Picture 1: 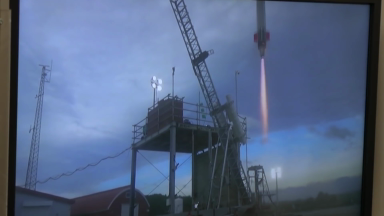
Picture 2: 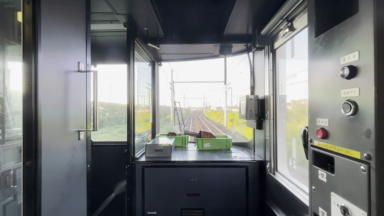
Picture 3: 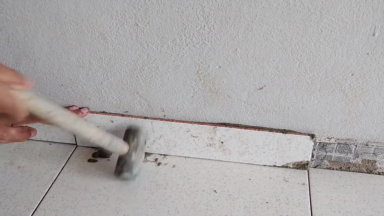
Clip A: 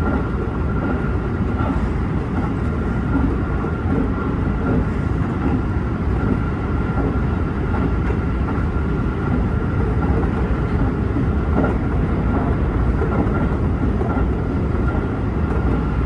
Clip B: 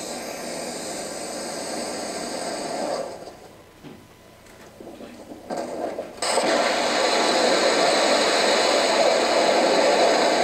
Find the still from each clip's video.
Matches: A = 2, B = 1